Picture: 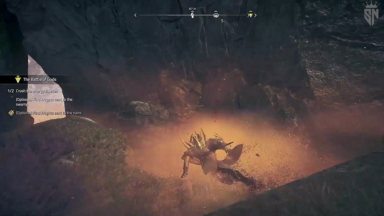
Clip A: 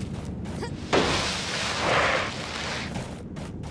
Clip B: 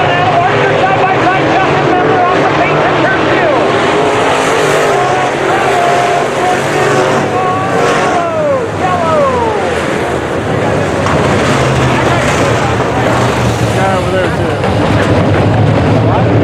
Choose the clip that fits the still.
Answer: A